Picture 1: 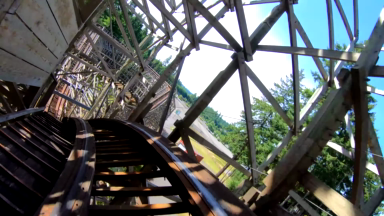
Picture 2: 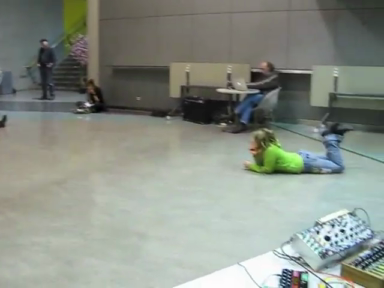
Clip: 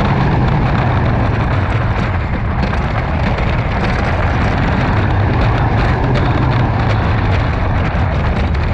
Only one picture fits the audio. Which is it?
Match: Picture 1